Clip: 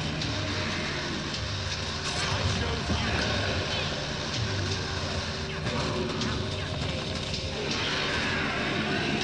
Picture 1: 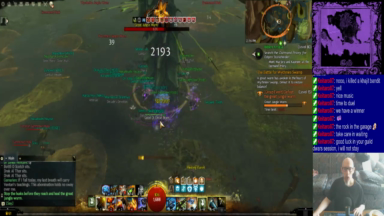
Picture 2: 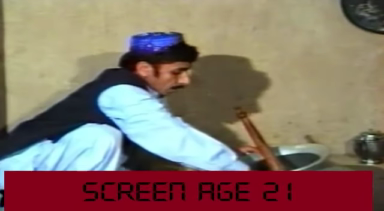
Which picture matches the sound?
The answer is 1